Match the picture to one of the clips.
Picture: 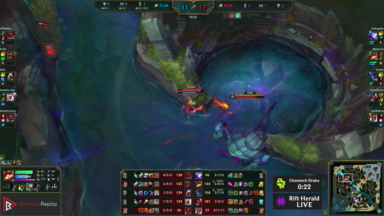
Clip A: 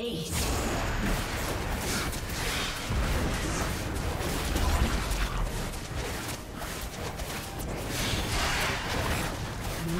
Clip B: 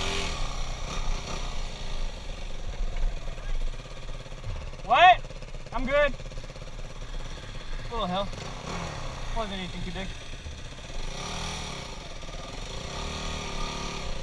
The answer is A